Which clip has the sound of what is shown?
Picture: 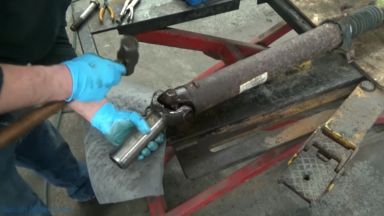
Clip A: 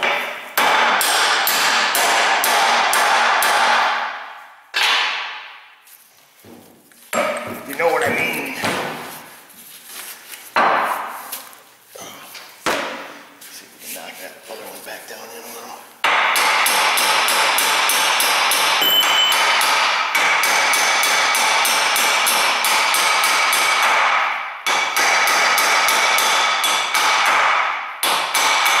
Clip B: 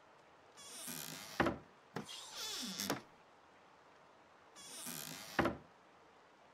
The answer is A